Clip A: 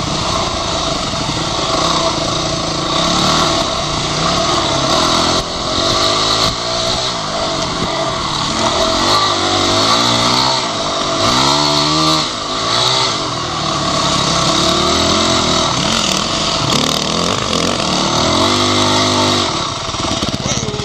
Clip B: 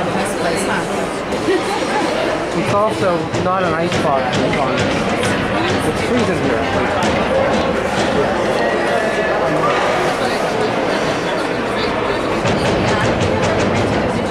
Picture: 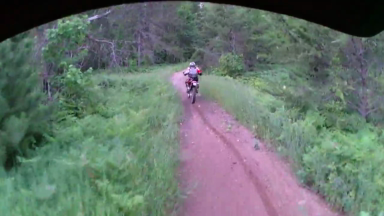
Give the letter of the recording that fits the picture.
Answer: A